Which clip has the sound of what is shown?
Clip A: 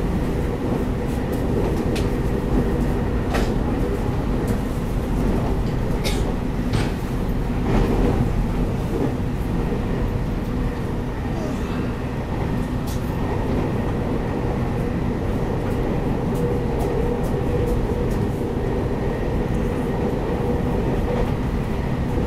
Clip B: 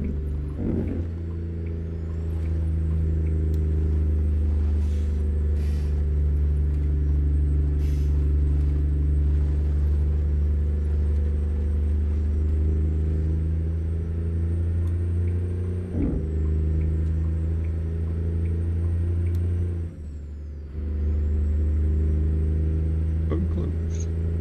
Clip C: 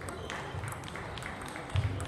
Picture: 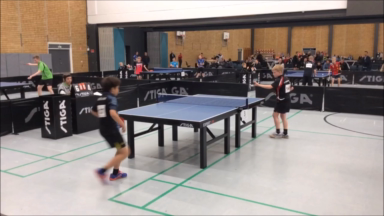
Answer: C